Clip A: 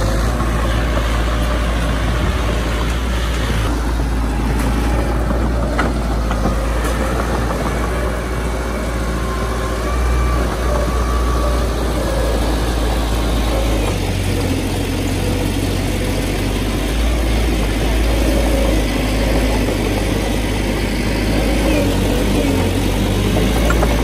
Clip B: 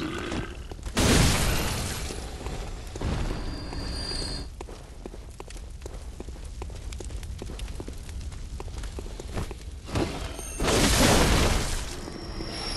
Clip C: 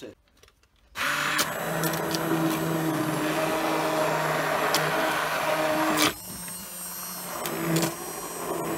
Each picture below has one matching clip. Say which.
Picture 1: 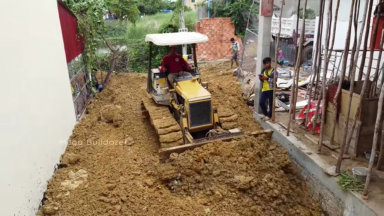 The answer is A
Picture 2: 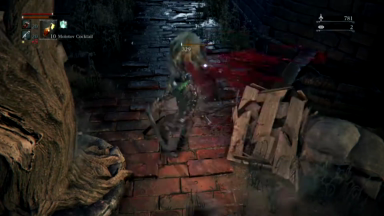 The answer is B